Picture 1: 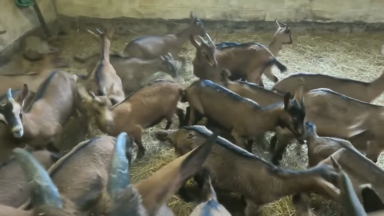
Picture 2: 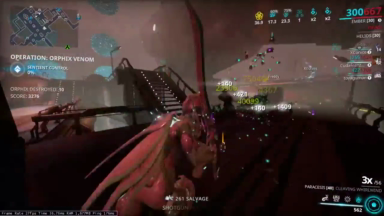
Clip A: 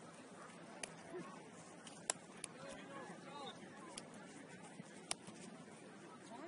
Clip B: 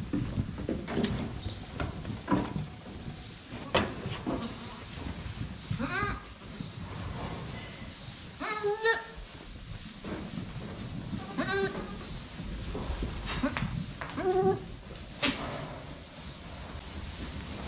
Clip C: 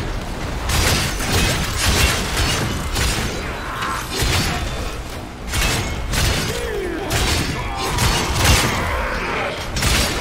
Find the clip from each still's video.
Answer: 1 B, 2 C